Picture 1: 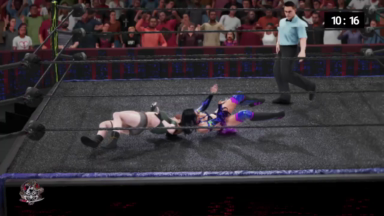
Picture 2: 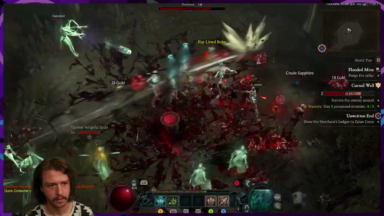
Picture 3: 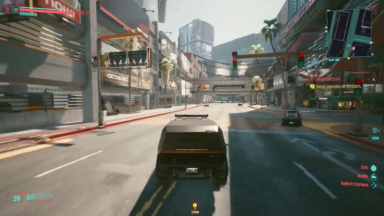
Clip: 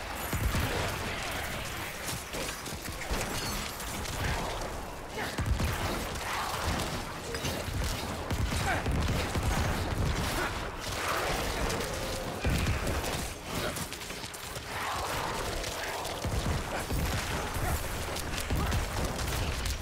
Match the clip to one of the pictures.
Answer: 2